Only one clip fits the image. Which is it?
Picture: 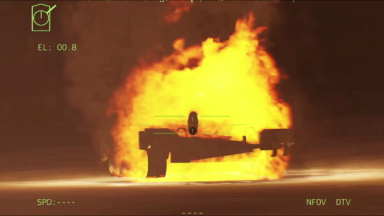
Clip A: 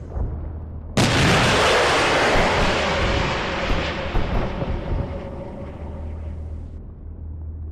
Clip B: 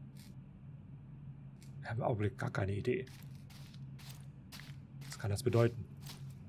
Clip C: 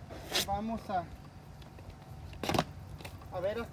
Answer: A